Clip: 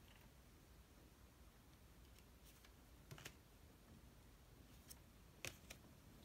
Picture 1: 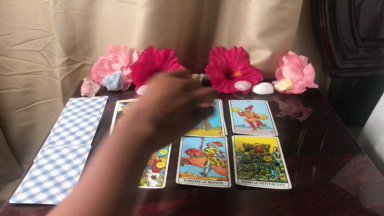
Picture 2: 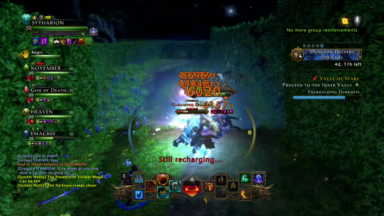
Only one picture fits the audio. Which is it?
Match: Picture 1